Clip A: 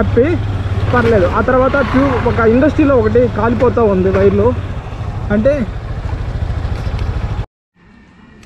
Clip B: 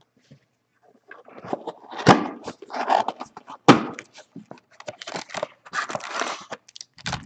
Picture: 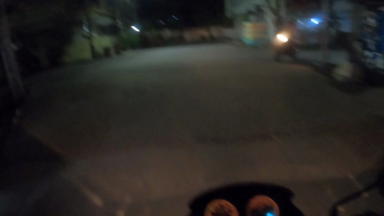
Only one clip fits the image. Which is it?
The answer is A